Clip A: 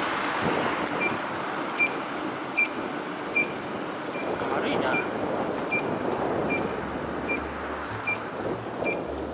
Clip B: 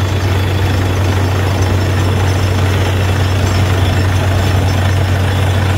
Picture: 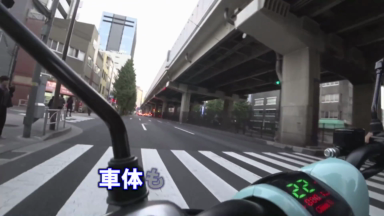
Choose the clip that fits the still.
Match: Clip A